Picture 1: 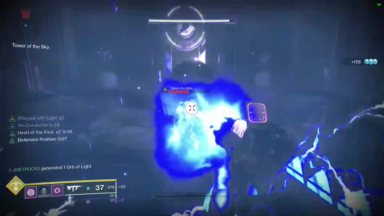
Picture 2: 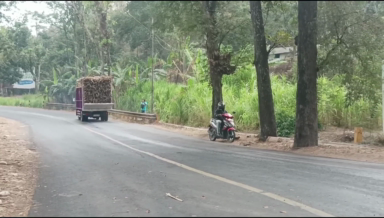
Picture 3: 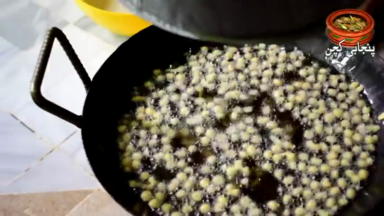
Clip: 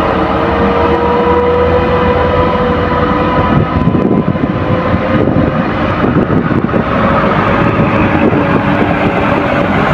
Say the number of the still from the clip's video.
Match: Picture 2